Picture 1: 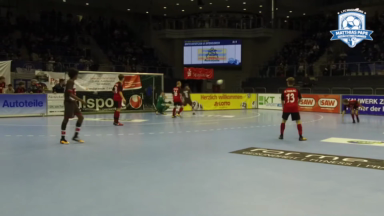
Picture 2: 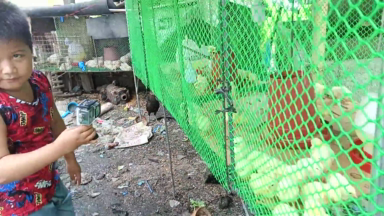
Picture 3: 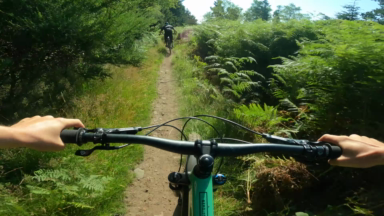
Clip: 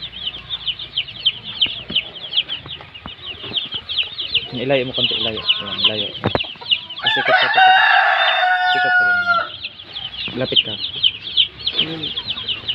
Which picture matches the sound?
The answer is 2